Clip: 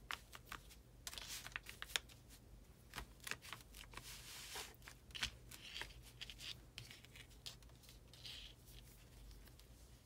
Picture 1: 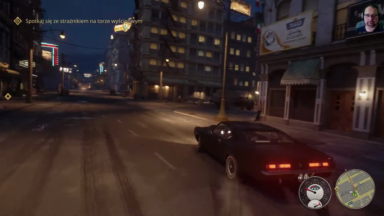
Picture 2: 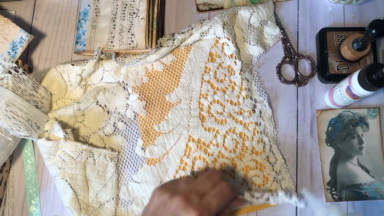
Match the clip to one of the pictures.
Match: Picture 2